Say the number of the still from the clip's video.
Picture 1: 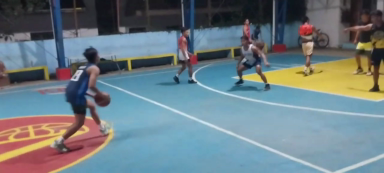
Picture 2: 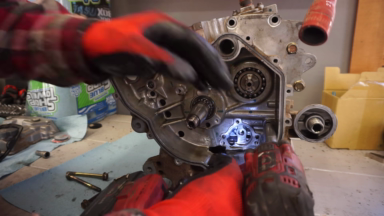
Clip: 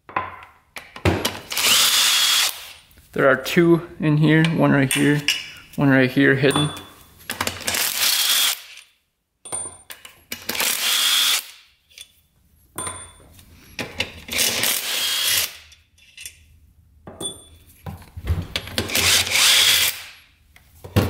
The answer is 2